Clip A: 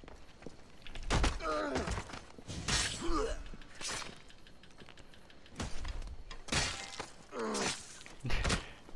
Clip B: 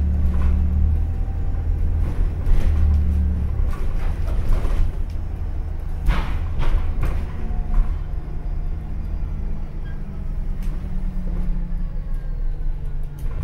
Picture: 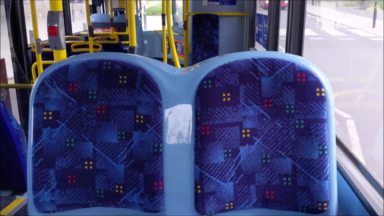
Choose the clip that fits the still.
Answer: B